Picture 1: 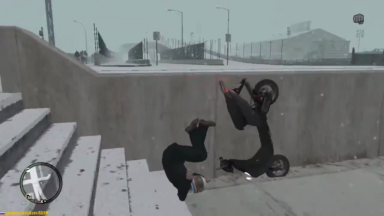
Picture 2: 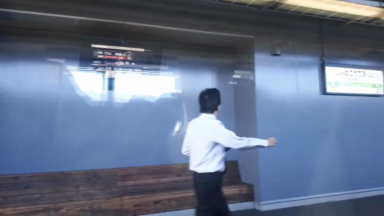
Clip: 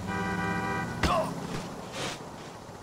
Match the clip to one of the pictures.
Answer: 1